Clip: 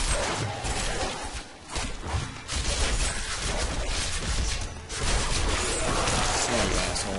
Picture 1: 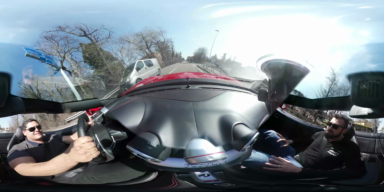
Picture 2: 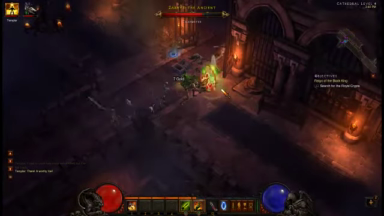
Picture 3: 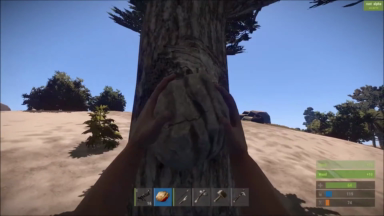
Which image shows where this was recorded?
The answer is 2